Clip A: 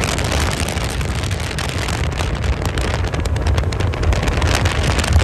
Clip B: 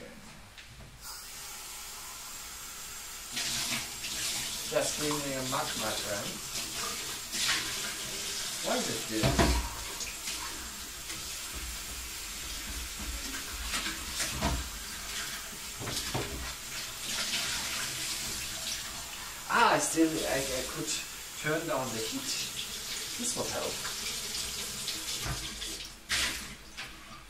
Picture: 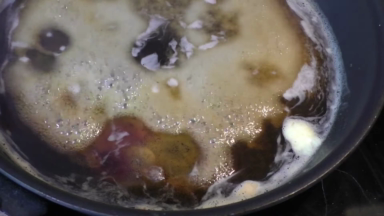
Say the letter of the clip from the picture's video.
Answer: B